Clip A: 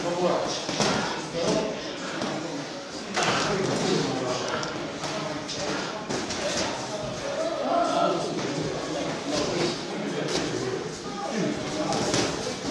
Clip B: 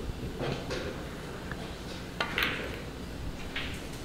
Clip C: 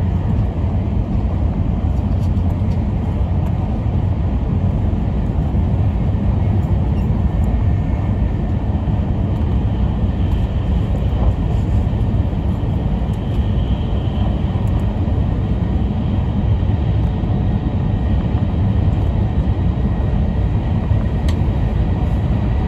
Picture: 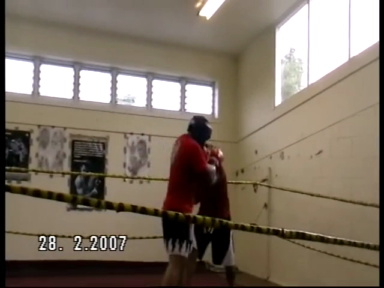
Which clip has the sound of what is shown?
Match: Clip A